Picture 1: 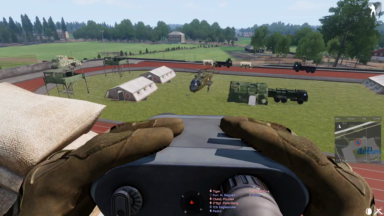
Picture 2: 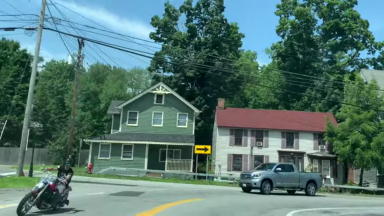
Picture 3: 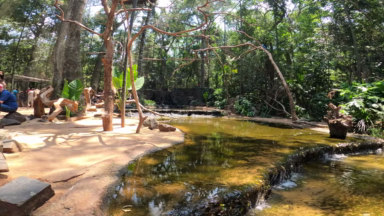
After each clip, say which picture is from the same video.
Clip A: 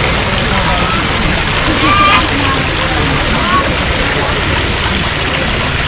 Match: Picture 3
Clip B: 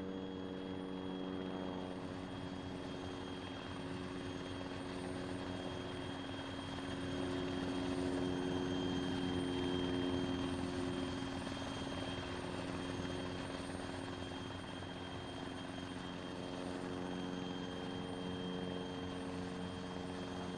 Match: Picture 1